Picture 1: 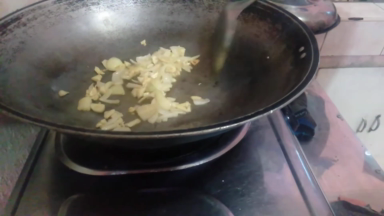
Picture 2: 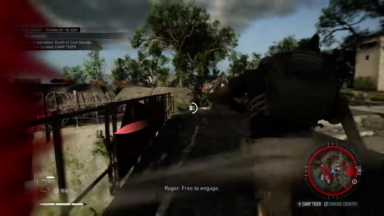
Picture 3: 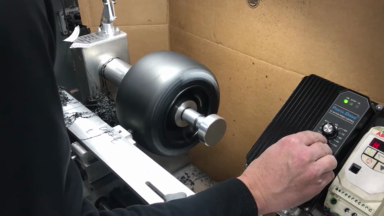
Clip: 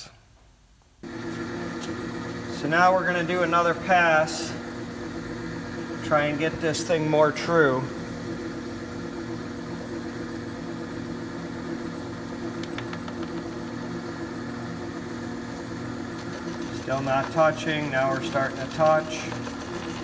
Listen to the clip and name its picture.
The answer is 3